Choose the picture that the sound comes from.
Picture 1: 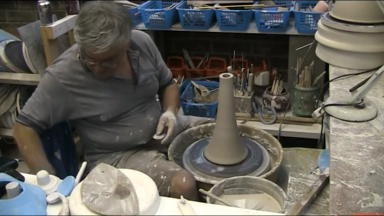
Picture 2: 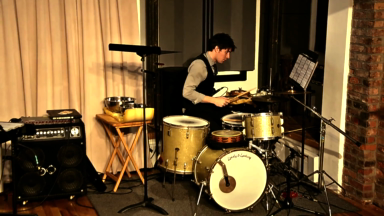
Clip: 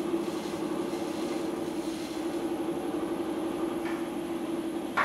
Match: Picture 1